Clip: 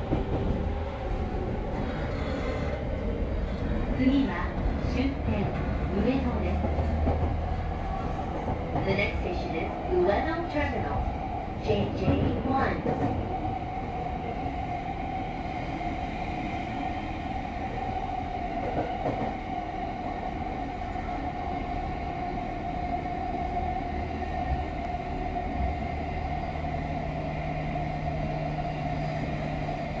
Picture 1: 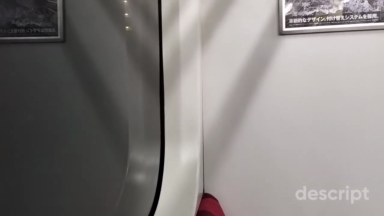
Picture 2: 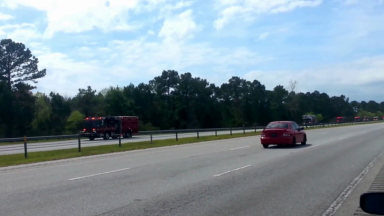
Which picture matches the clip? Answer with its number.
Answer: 1